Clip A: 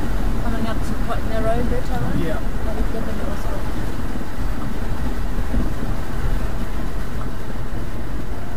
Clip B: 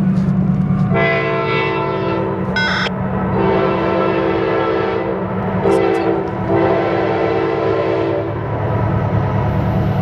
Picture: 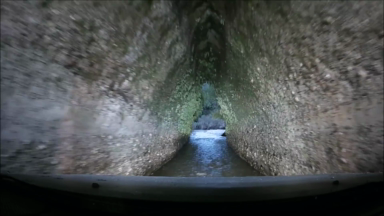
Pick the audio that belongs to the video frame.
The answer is A